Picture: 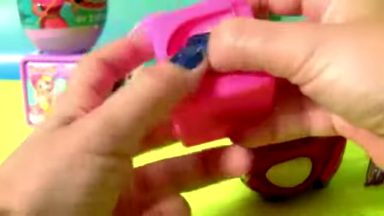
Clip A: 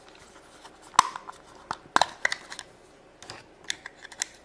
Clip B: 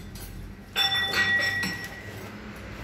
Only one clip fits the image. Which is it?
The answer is A